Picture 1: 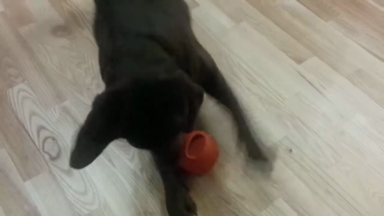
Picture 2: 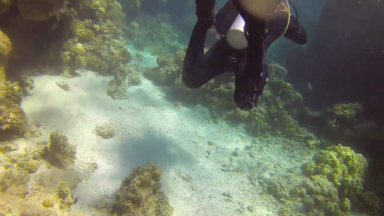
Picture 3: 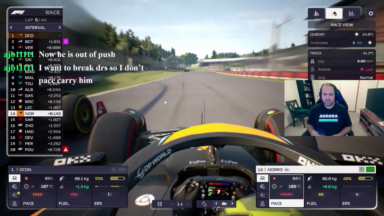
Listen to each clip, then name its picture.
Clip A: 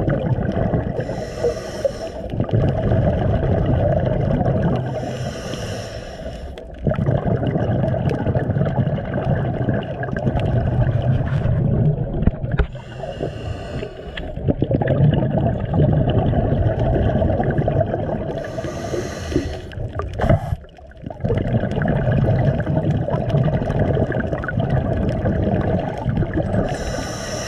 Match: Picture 2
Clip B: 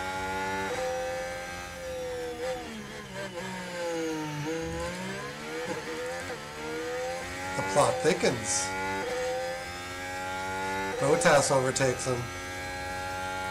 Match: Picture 3